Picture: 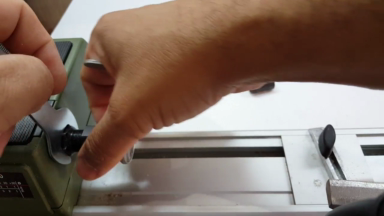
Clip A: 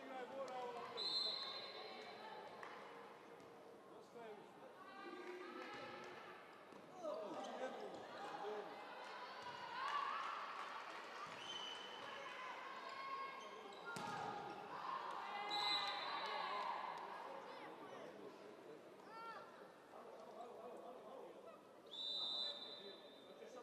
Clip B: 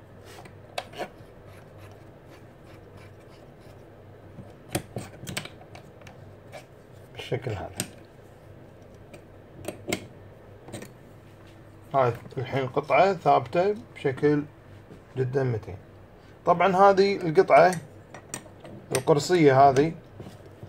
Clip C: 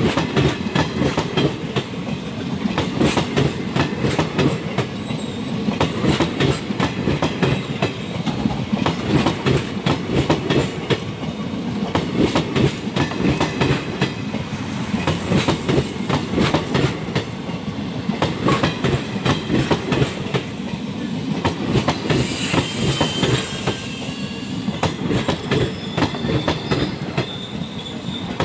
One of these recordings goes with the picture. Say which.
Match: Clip B